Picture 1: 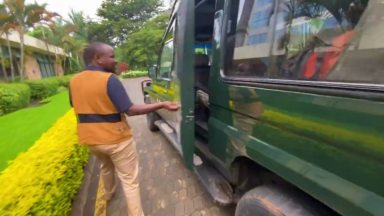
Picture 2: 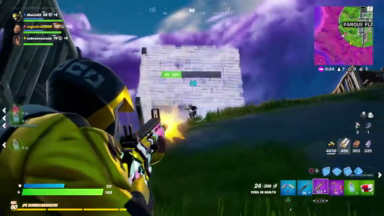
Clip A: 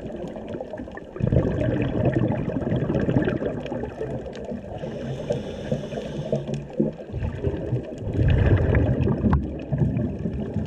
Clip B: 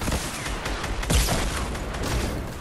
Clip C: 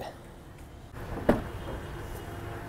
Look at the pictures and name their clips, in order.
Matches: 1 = C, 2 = B